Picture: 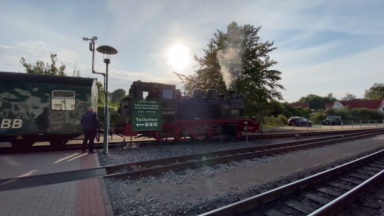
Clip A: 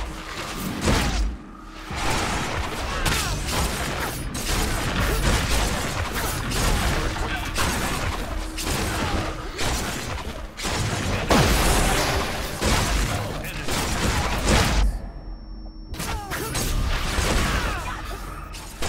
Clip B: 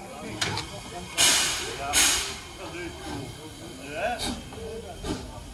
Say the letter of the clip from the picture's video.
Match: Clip B